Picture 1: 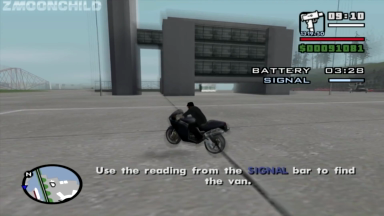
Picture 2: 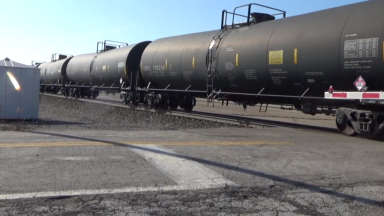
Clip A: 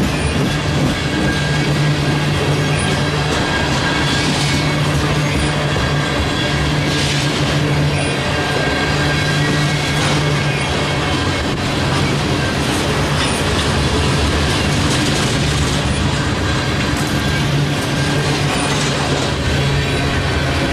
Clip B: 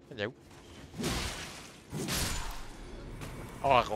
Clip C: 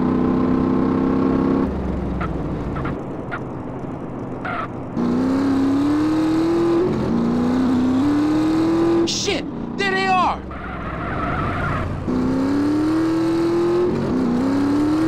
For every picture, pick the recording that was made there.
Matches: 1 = C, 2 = A